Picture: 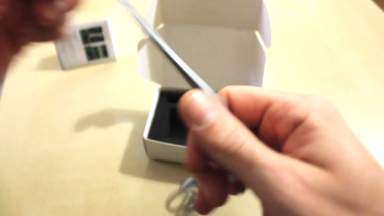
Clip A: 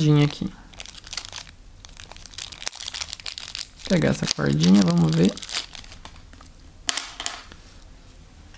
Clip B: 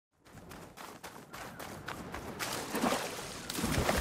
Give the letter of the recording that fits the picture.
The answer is A